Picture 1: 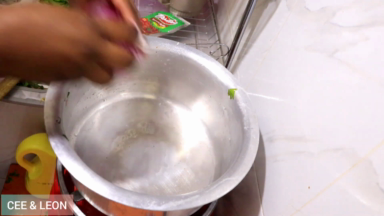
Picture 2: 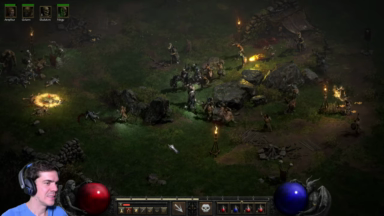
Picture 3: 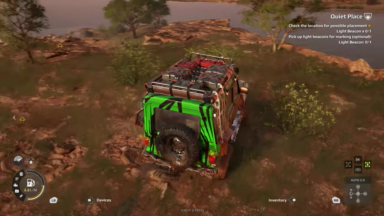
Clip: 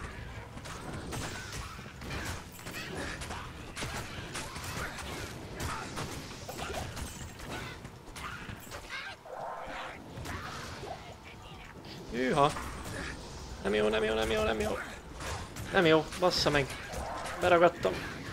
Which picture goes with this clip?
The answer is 2